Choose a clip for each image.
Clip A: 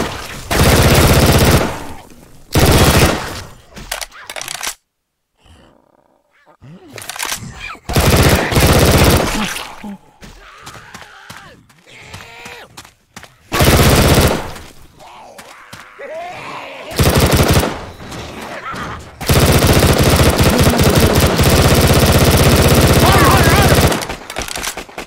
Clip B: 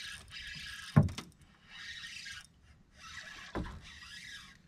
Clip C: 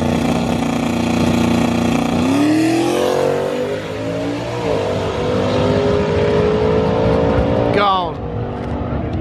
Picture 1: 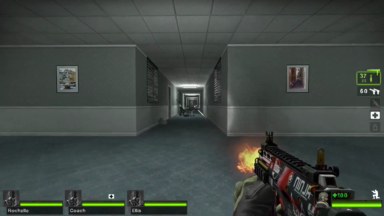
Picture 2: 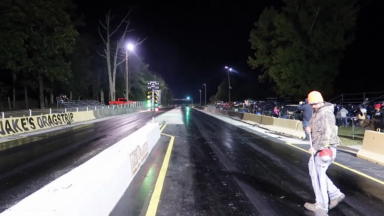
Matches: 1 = A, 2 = C